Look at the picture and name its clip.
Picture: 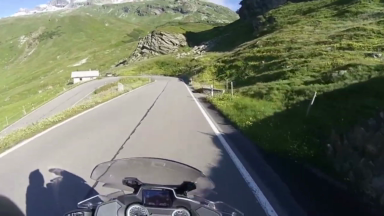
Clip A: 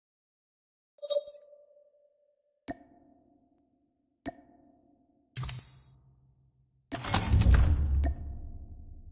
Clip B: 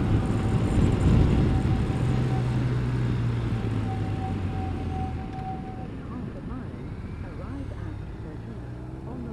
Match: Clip B